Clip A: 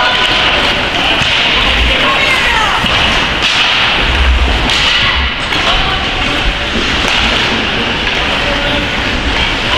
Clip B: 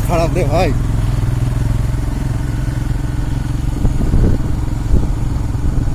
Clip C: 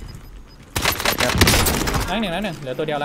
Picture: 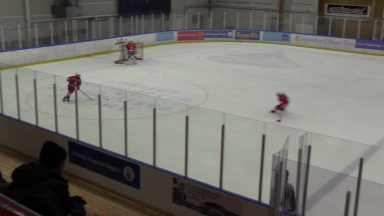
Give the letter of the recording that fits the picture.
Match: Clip A